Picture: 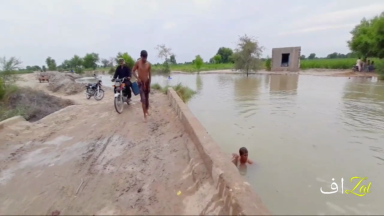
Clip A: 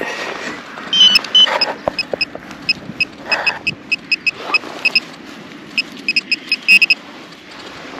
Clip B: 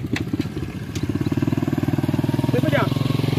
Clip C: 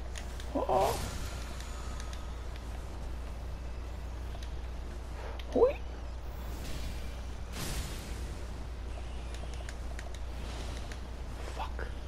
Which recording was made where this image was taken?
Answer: B